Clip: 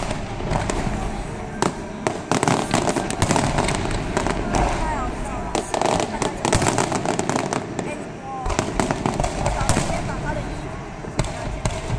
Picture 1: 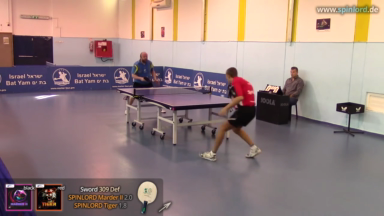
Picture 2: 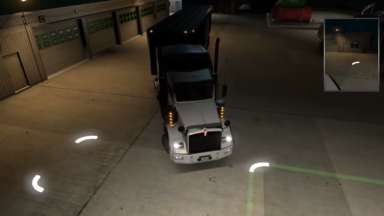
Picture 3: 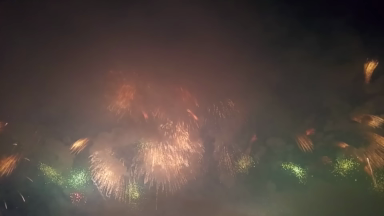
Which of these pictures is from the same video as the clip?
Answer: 3